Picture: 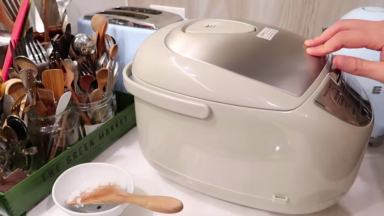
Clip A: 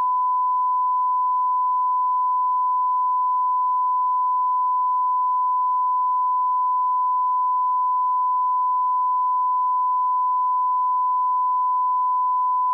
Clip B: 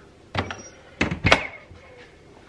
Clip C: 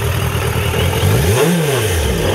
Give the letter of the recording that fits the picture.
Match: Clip B